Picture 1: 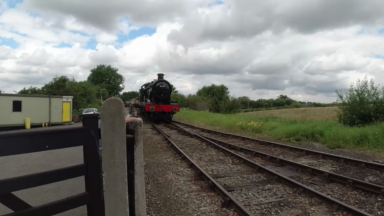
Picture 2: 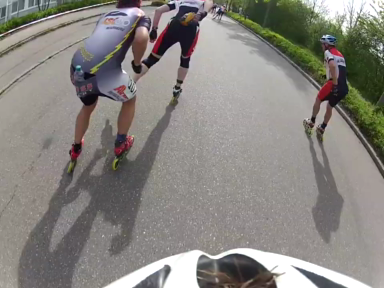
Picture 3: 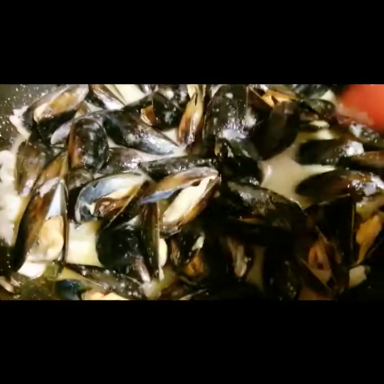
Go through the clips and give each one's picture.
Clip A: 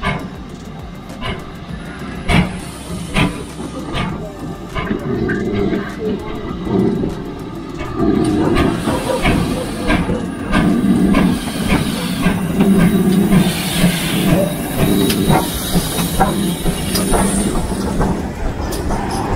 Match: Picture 1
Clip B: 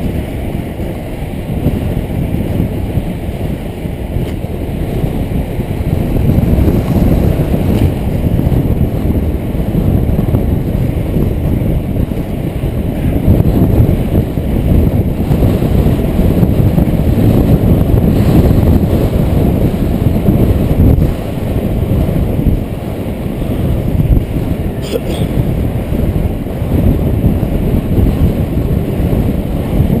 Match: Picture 2